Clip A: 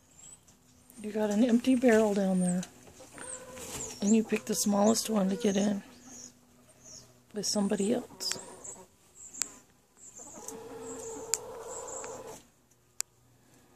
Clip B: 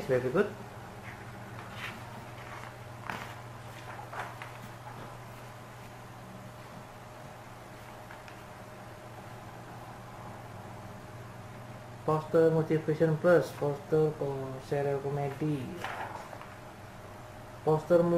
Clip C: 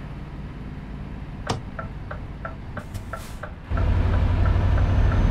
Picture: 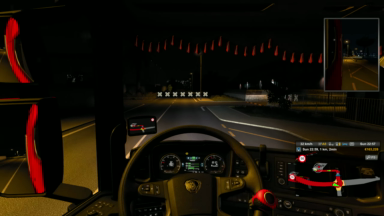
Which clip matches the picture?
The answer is C